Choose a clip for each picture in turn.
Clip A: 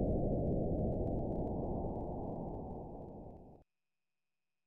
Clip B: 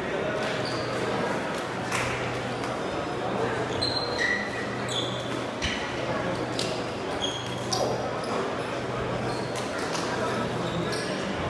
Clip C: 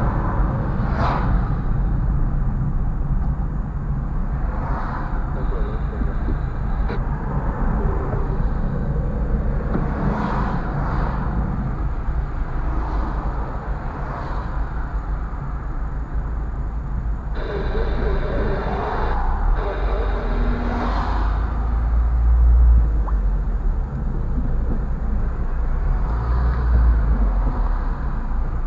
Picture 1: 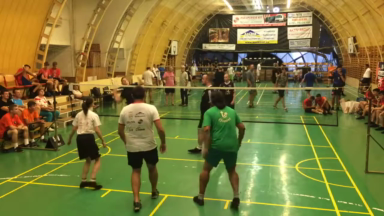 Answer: B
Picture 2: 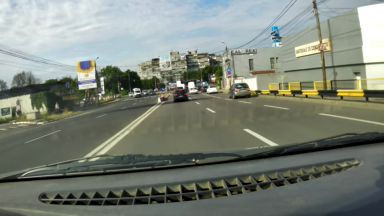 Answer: C